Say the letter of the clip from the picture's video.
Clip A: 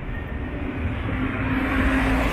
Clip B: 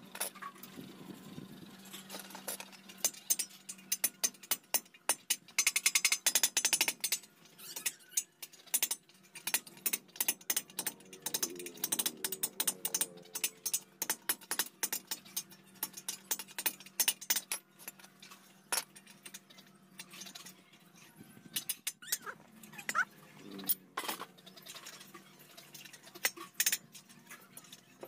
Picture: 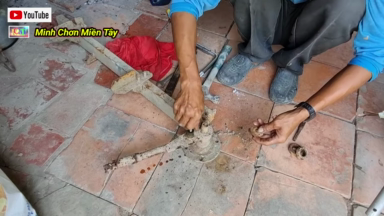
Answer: B